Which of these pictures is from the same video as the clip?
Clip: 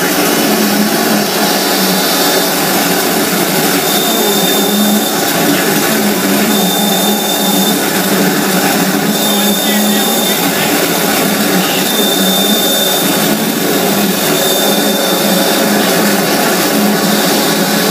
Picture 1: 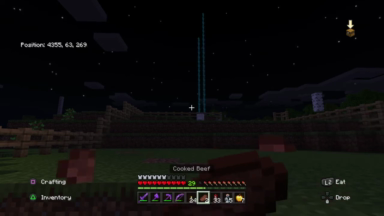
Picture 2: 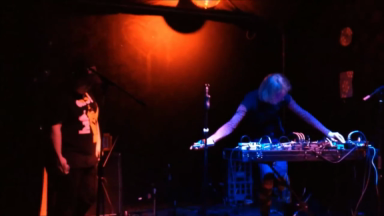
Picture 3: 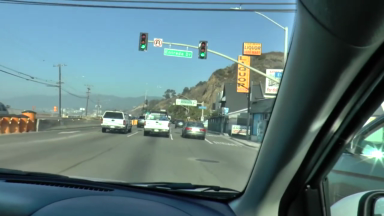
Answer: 2